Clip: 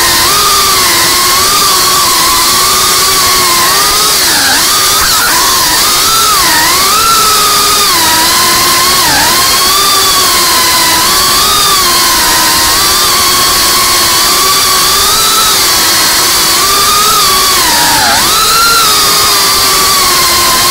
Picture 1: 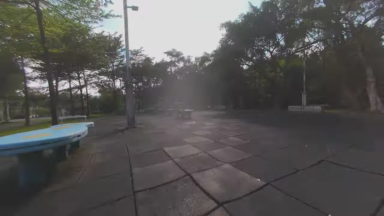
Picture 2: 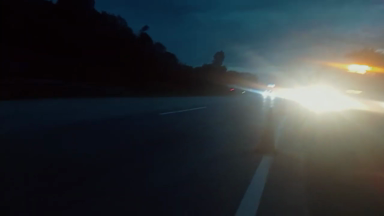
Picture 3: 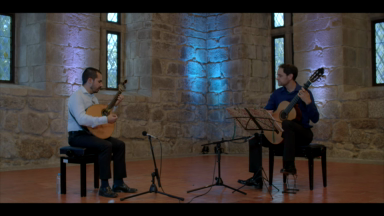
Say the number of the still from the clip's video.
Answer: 1